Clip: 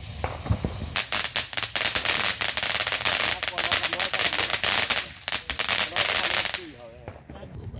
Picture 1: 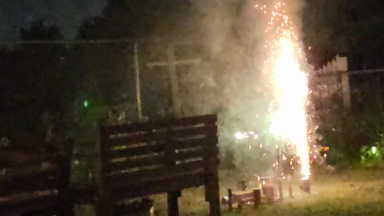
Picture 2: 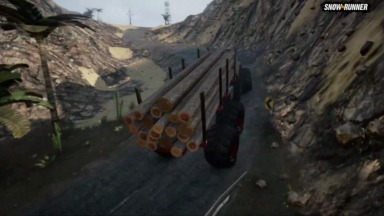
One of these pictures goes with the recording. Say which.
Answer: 1